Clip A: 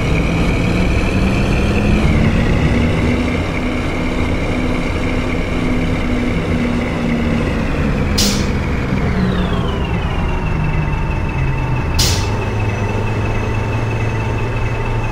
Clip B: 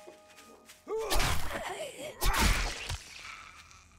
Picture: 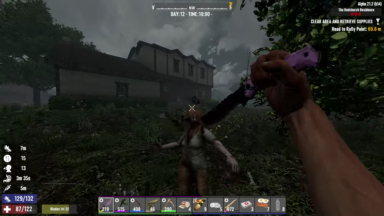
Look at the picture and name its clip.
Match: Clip B